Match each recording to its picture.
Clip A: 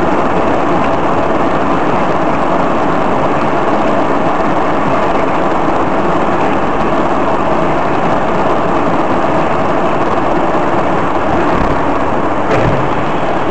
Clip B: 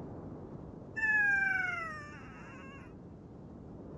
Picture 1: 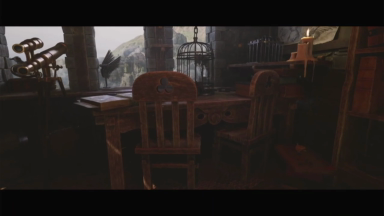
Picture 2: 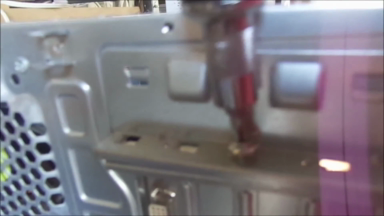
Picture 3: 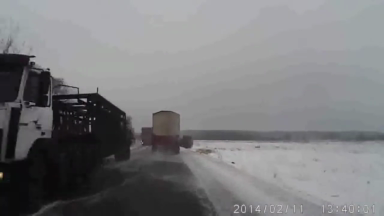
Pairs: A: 3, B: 1